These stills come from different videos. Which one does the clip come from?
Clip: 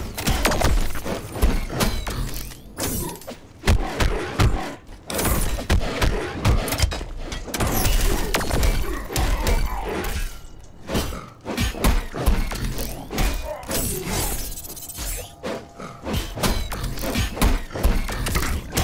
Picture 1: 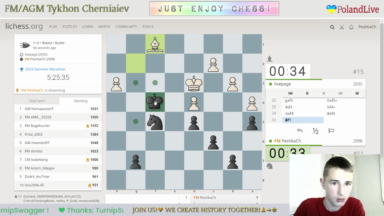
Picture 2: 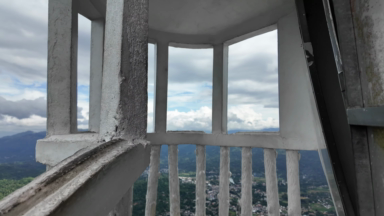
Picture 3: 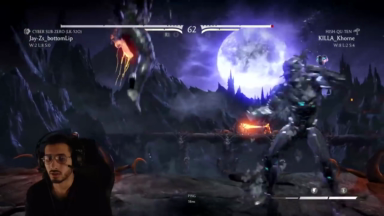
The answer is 3